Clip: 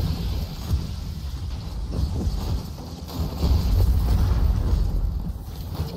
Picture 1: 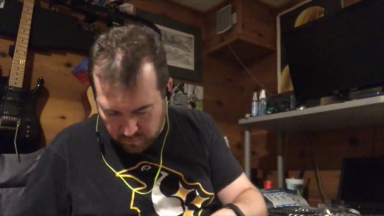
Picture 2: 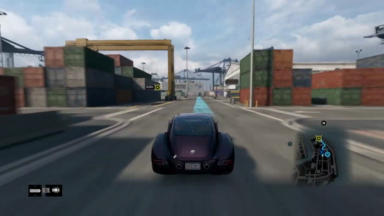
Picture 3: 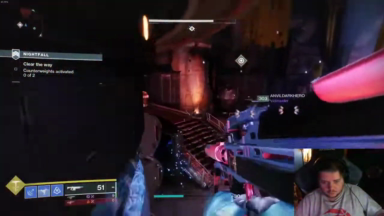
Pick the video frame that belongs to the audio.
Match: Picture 3